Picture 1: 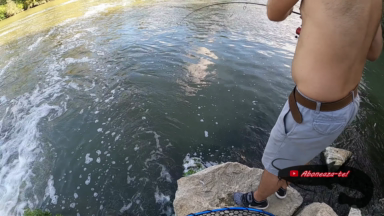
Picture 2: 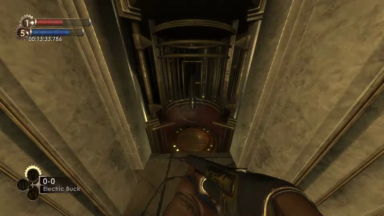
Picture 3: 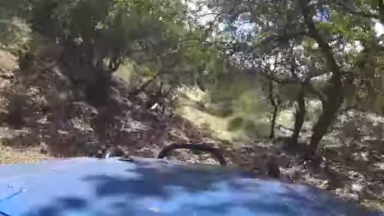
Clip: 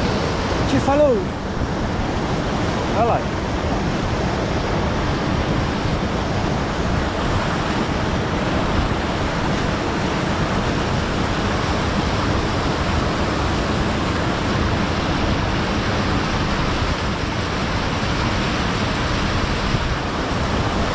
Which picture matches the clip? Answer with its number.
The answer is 1